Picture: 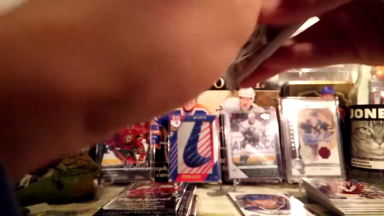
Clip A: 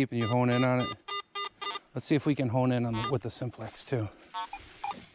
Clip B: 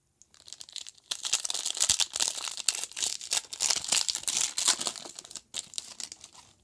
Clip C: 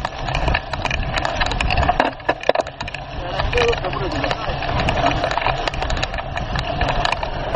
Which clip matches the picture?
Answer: B